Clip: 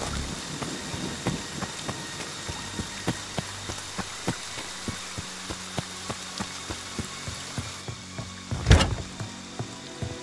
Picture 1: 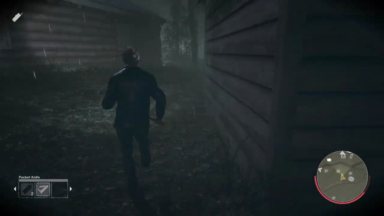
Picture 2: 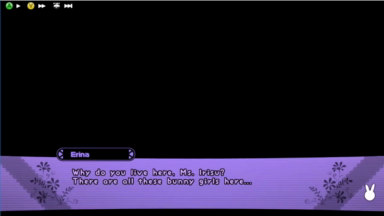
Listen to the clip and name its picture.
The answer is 1